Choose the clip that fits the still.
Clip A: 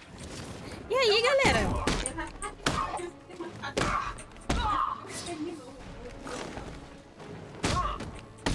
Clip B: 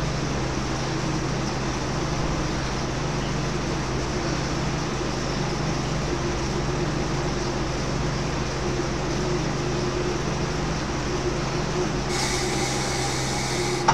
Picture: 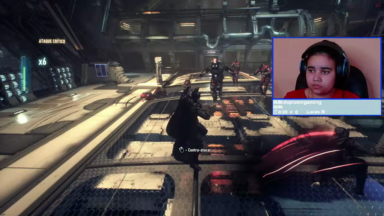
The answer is A